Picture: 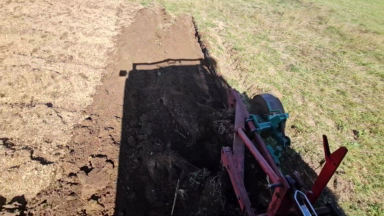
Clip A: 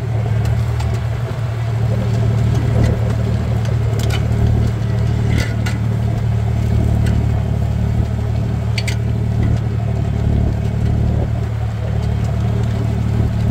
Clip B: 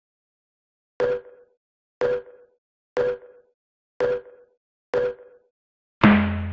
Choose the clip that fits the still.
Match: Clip A